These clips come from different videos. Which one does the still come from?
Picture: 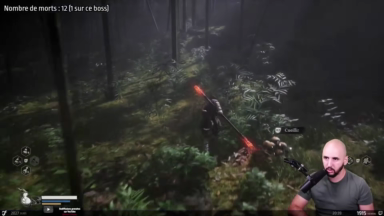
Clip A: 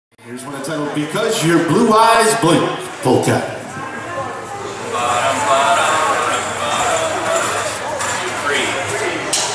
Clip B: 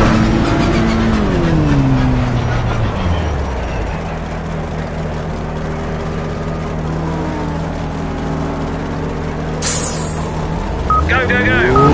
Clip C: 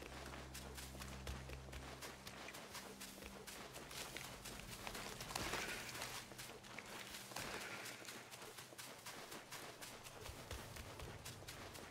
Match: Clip C